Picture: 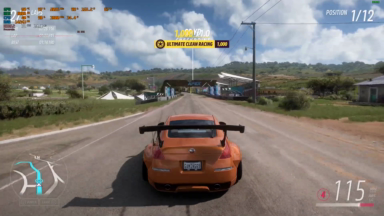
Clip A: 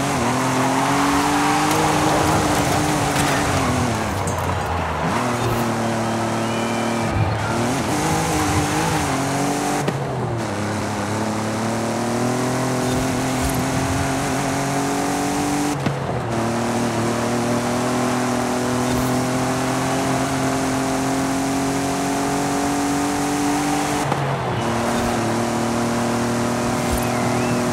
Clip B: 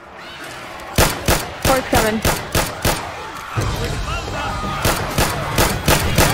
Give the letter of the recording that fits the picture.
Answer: A